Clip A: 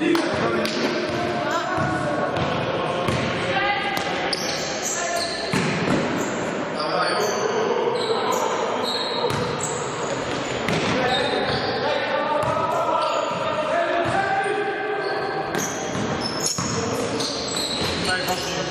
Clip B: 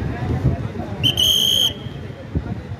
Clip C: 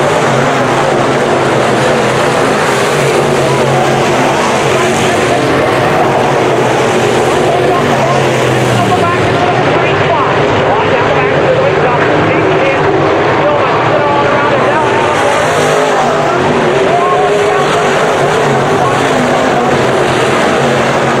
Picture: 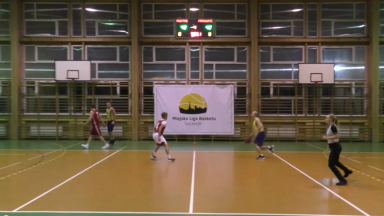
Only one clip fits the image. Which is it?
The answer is A